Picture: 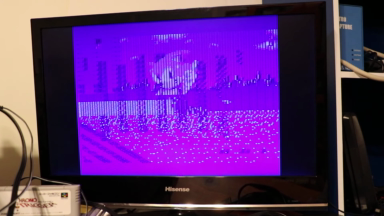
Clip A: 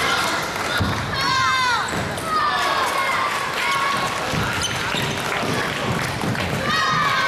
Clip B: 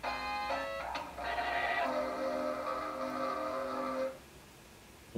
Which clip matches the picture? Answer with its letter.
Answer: B